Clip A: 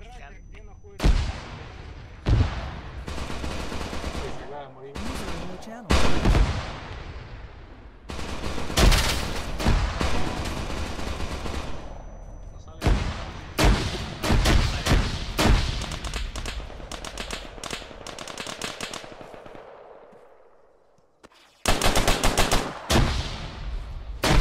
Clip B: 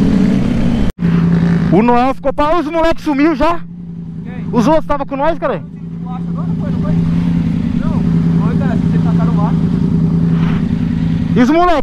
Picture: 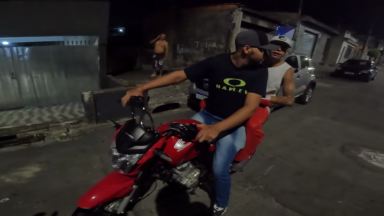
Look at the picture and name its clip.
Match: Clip B